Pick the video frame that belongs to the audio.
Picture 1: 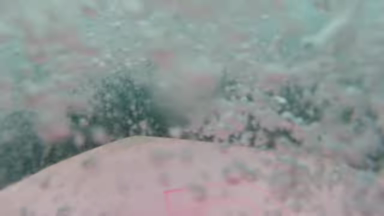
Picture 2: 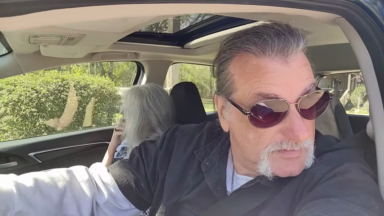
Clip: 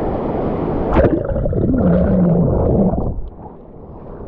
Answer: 1